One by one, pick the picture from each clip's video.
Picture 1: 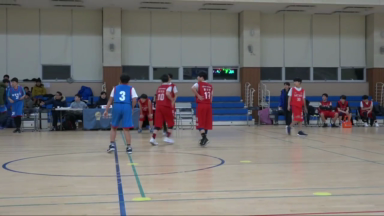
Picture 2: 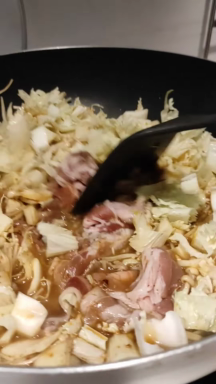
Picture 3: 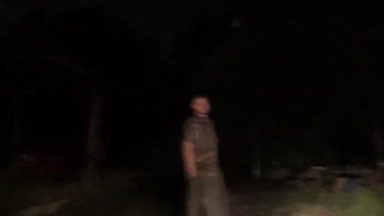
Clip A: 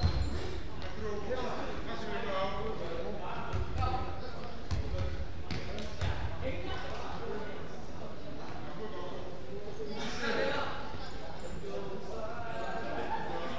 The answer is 1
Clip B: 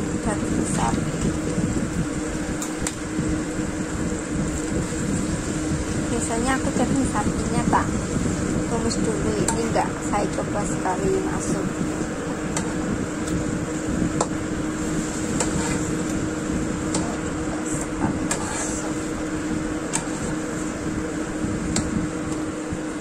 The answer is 2